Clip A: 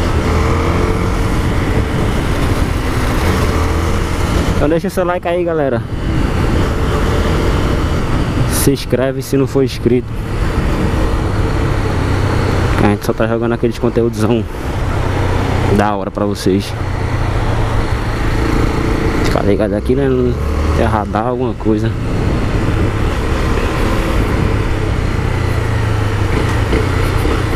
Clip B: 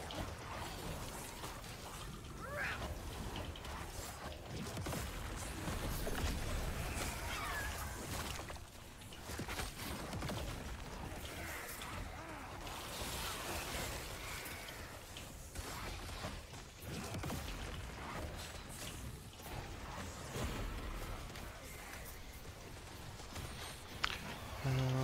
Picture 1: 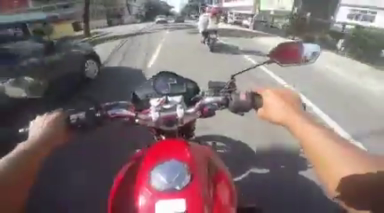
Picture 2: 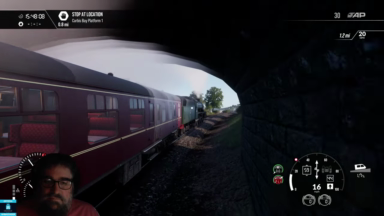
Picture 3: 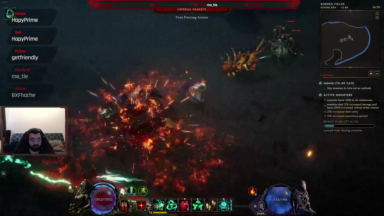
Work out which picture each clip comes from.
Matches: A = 1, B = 3